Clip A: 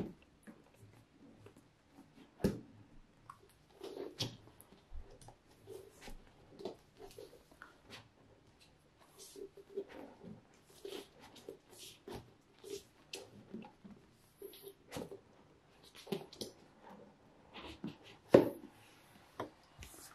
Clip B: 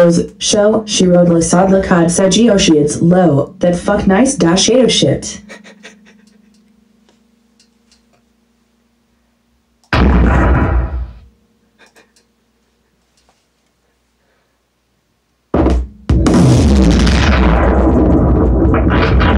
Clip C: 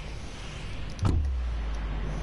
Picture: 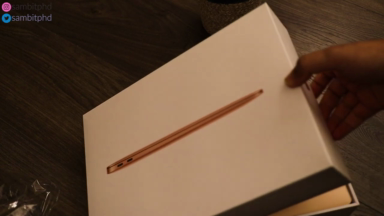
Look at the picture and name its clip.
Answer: A